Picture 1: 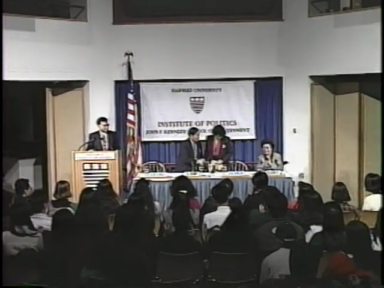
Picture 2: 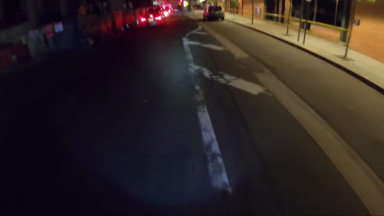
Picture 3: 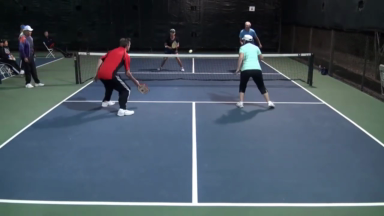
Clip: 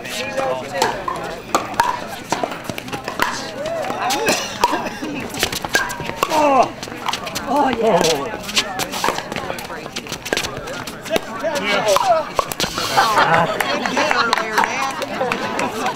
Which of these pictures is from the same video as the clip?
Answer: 3